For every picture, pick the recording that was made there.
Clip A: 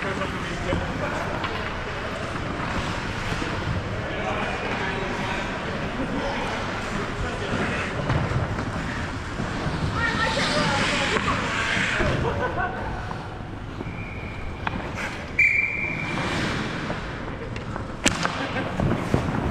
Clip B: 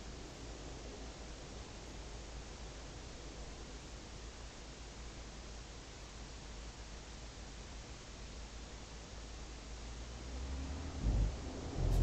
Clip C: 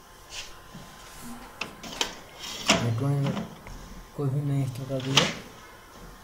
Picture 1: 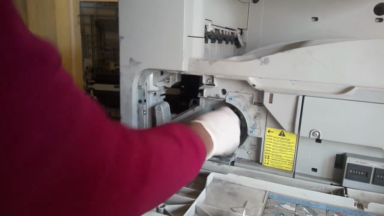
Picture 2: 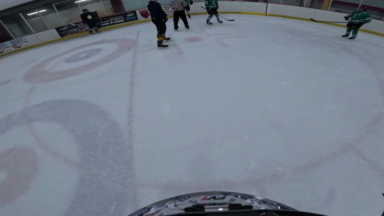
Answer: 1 C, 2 A